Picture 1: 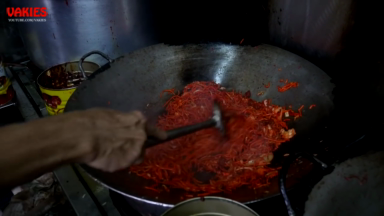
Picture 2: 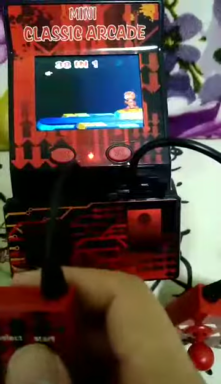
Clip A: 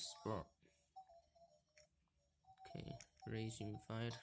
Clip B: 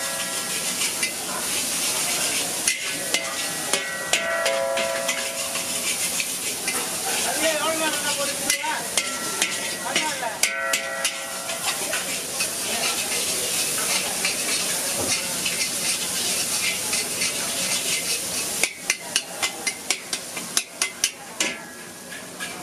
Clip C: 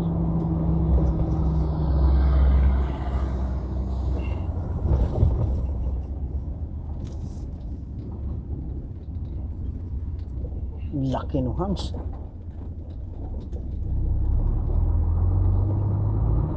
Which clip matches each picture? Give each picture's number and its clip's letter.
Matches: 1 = B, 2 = A